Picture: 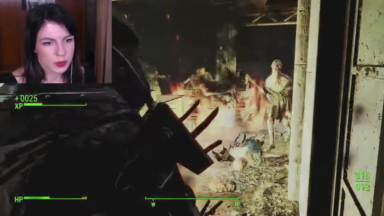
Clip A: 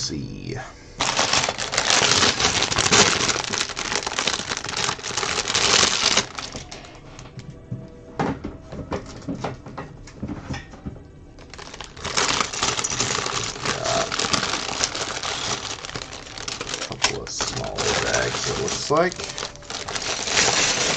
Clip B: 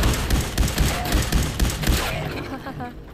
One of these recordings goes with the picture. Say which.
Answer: B